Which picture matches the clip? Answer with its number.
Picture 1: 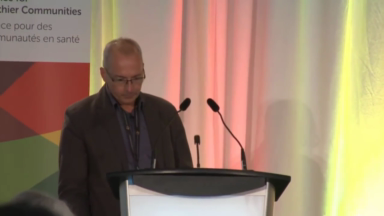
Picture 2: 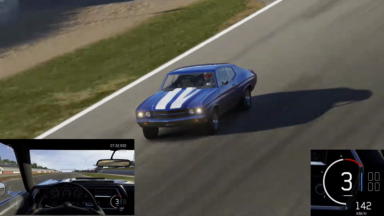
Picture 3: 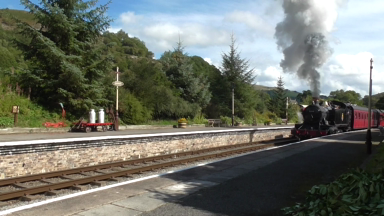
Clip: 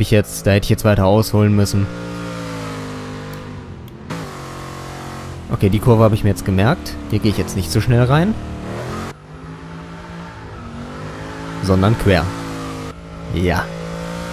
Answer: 2